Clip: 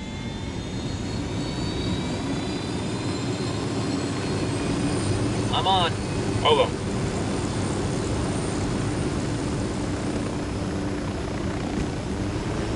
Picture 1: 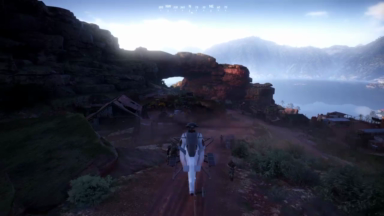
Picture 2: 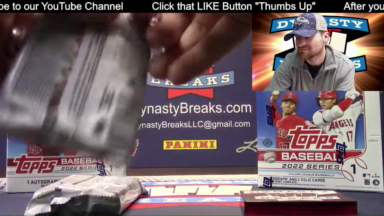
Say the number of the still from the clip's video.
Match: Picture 1